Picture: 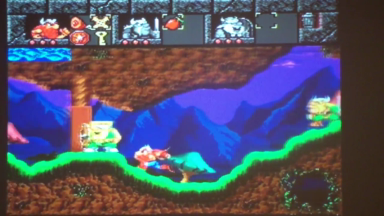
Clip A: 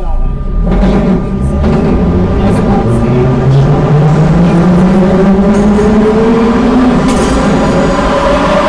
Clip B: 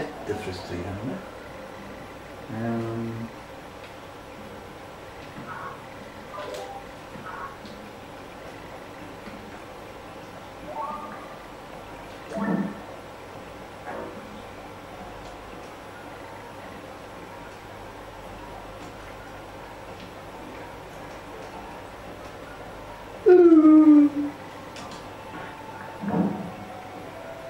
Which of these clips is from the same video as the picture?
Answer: B